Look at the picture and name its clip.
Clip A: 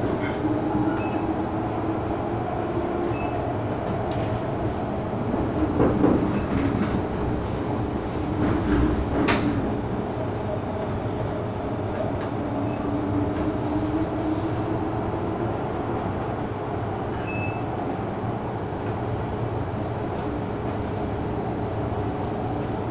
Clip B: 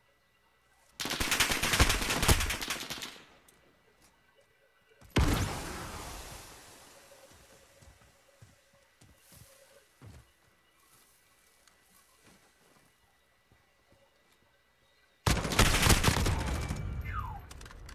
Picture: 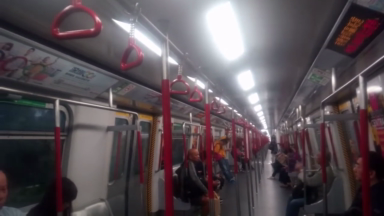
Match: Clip A